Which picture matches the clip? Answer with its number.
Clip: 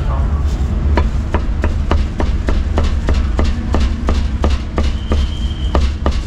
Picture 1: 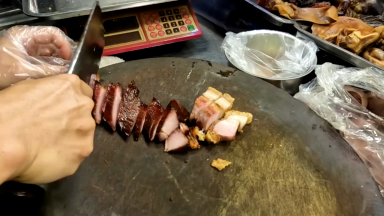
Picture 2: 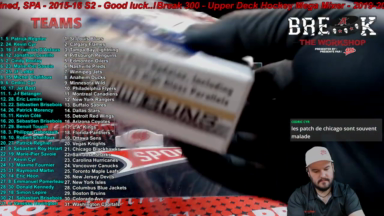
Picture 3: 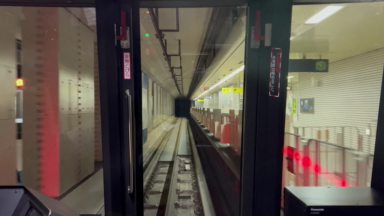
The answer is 1